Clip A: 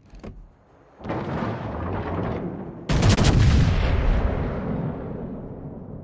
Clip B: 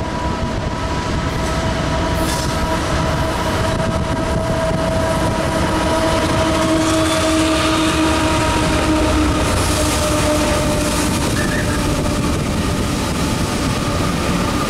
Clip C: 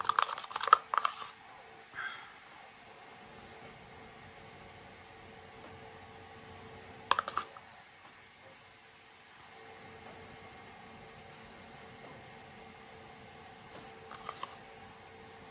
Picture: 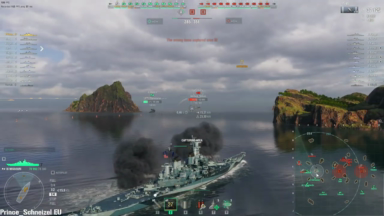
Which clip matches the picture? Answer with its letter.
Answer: A